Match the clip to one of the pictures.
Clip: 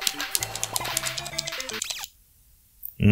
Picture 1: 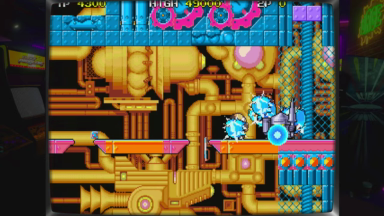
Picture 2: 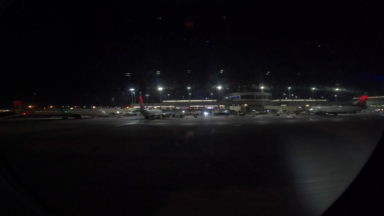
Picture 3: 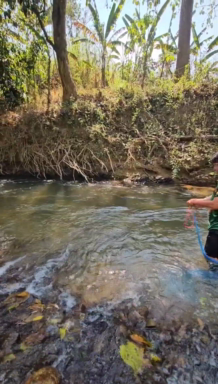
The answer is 1